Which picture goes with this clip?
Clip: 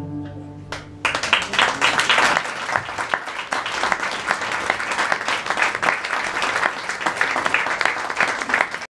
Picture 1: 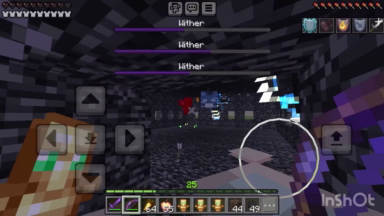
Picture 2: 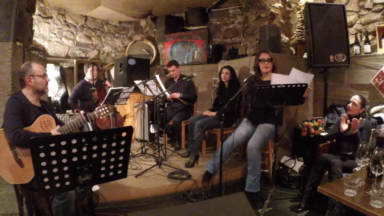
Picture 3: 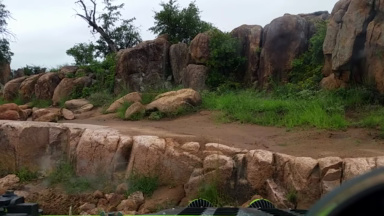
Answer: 2